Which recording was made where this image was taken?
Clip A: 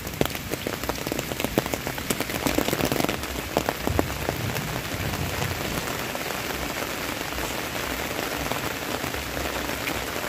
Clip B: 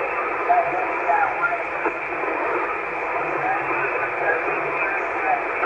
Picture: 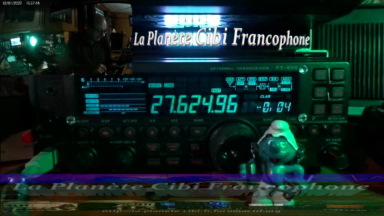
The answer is B